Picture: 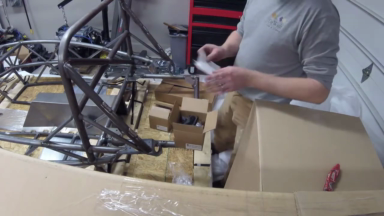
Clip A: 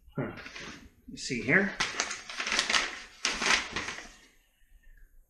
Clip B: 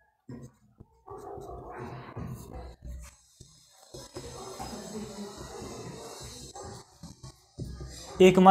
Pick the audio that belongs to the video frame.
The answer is A